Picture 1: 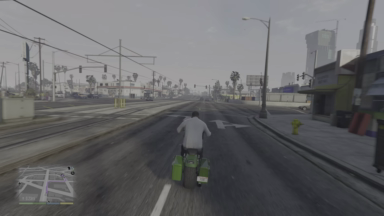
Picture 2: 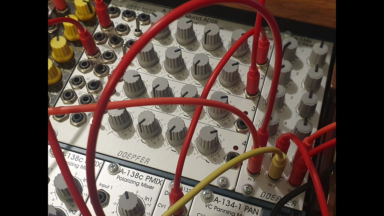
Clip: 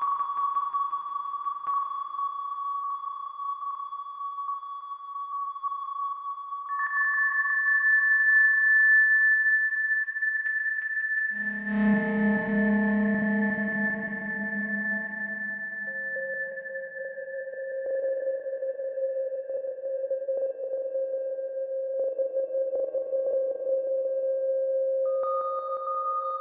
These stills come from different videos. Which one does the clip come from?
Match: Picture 2